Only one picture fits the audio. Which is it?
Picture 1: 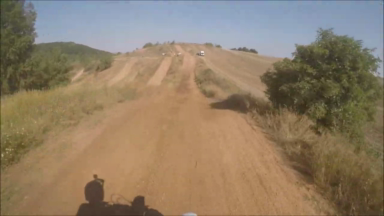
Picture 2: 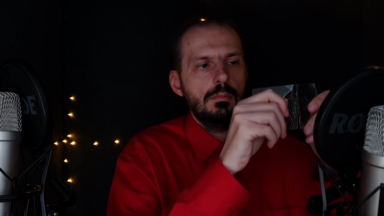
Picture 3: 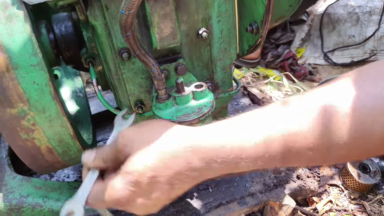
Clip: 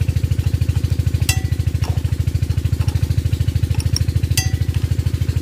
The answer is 3